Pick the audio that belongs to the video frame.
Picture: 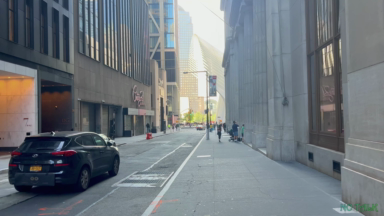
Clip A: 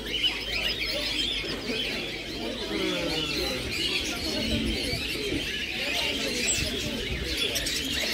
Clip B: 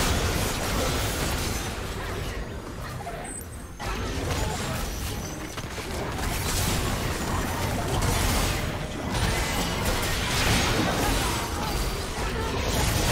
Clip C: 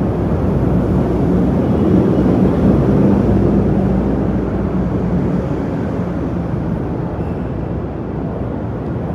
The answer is C